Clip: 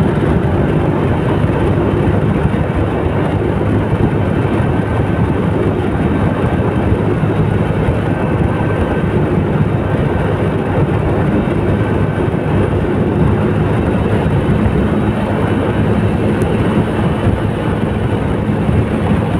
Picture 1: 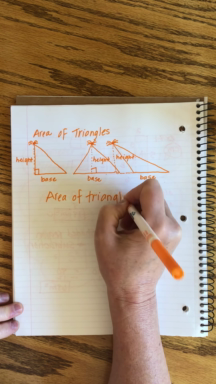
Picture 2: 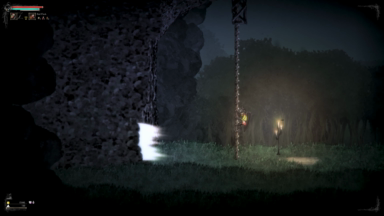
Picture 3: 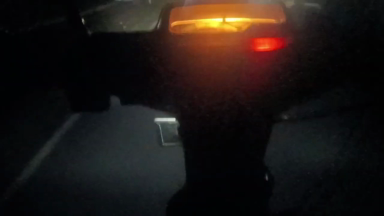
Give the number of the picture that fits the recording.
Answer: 3